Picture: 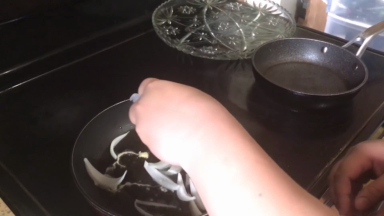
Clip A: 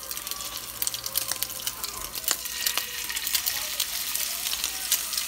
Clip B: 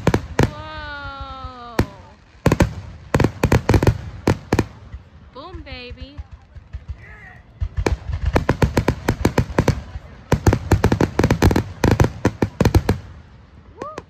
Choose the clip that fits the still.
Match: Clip A